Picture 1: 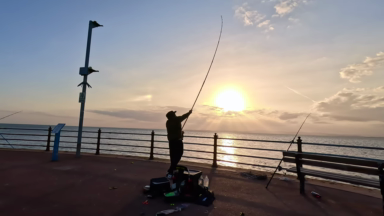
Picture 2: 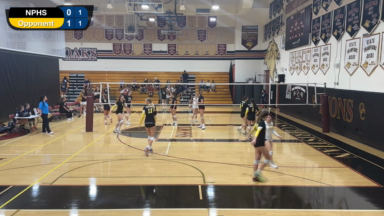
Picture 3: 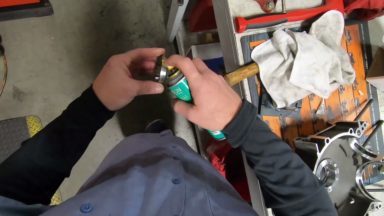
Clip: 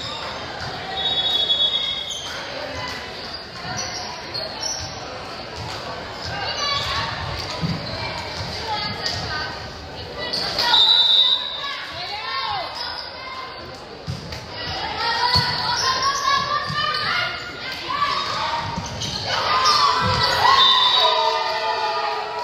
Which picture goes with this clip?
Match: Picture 2